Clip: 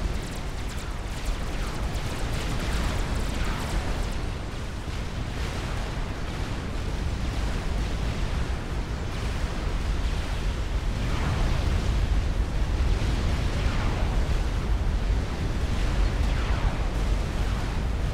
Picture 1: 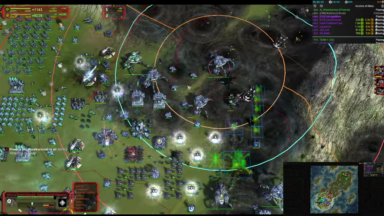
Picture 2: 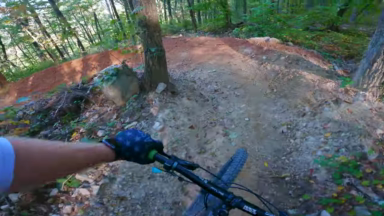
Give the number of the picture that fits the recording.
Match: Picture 1